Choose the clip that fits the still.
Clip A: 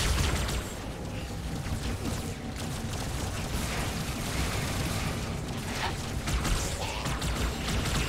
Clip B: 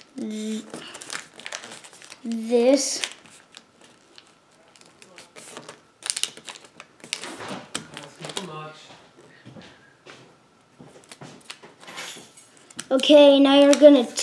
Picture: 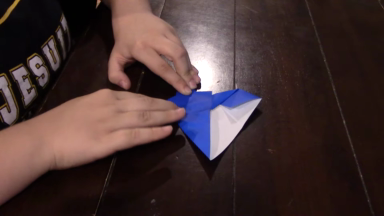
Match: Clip B